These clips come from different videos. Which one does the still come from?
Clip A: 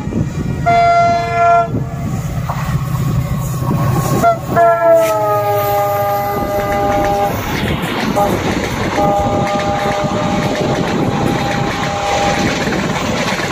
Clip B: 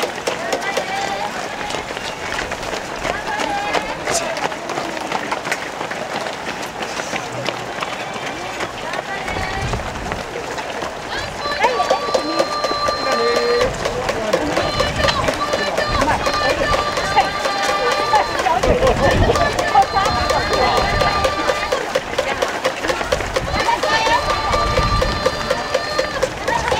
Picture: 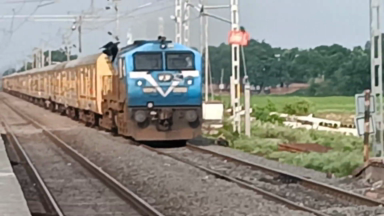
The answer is A